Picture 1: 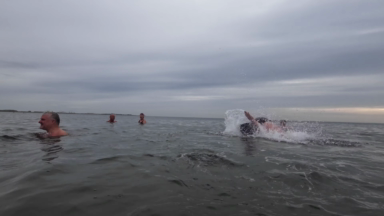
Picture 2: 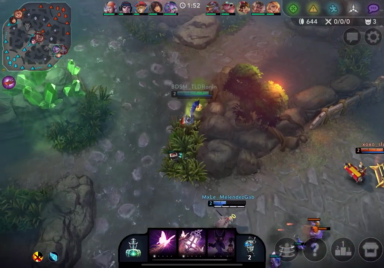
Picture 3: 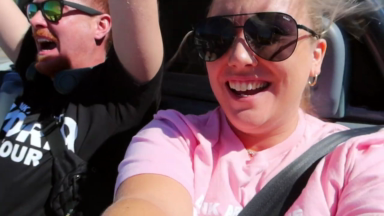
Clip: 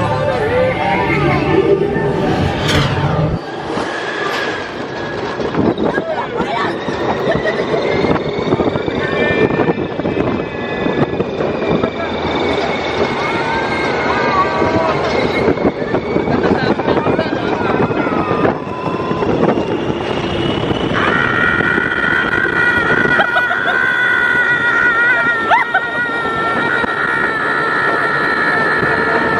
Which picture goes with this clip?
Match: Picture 3